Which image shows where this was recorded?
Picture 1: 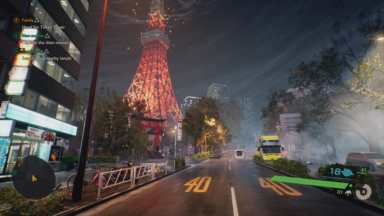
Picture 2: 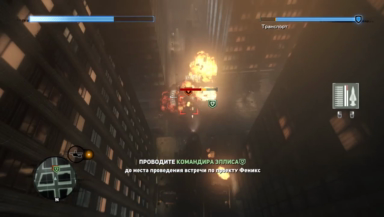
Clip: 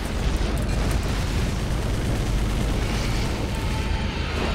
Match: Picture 2